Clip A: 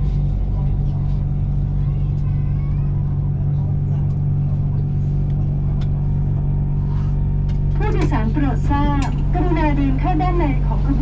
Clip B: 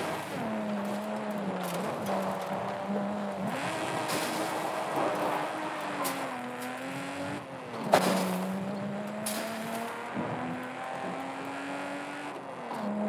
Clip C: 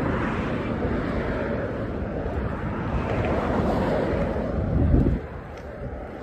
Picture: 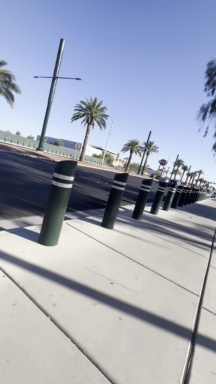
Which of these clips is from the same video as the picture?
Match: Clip C